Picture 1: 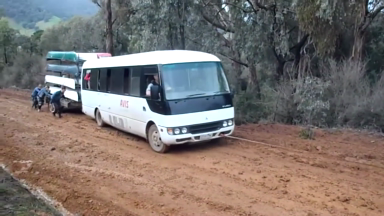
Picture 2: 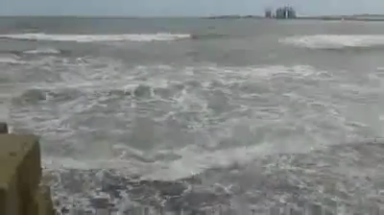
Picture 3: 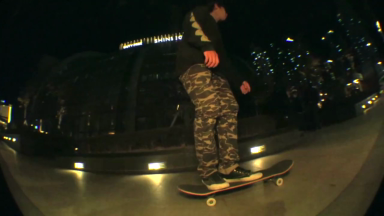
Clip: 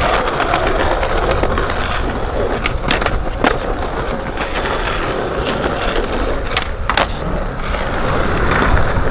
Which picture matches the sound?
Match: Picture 3